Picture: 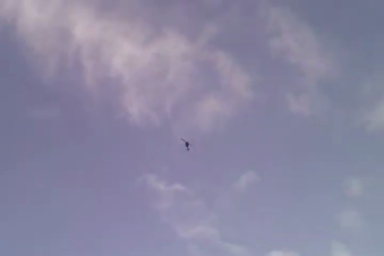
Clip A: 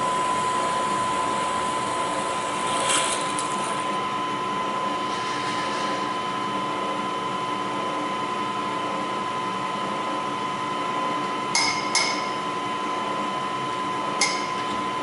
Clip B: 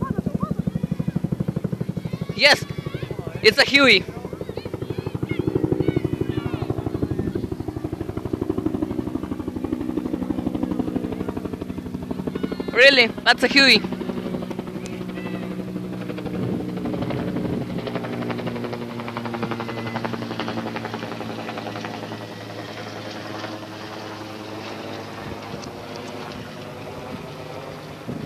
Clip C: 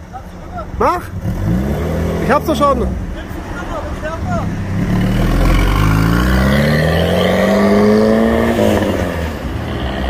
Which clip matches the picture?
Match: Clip B